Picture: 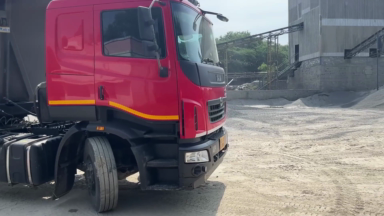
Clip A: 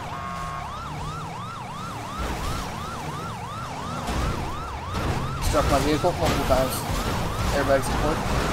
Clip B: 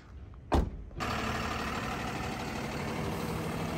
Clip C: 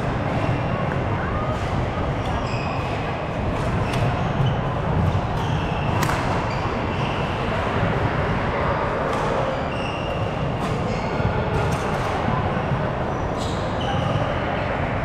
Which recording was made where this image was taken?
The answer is B